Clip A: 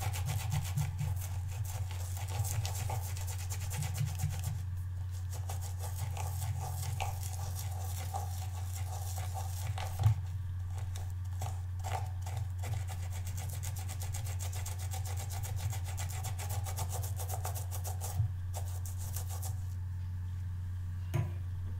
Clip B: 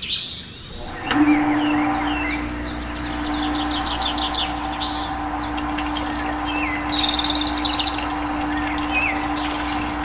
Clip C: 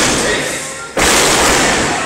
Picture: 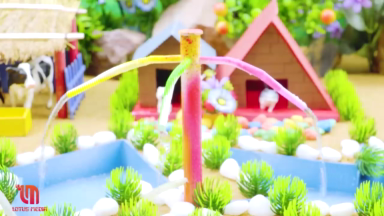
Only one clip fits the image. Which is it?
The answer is B